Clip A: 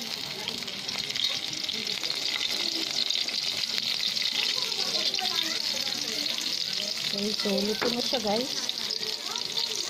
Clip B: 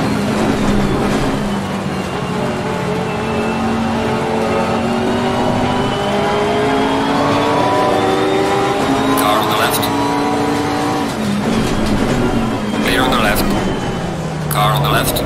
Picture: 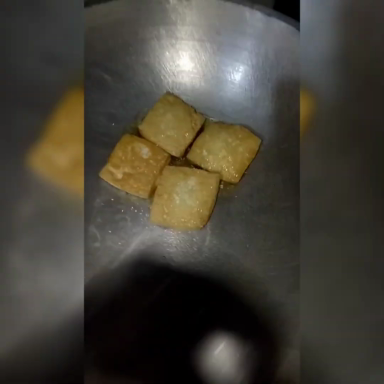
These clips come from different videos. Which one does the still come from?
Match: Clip A